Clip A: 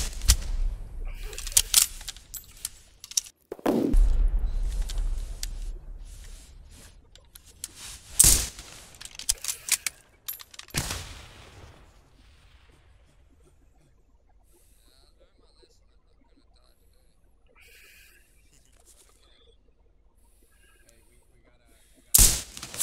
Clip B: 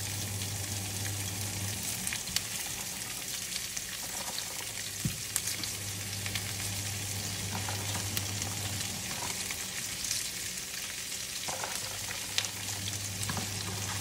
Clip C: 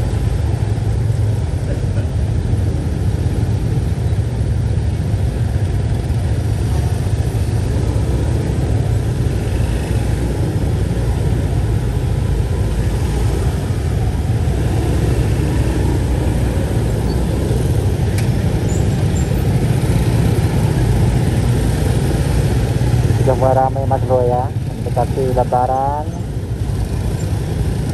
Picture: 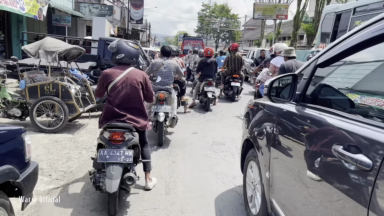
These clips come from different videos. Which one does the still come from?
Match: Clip C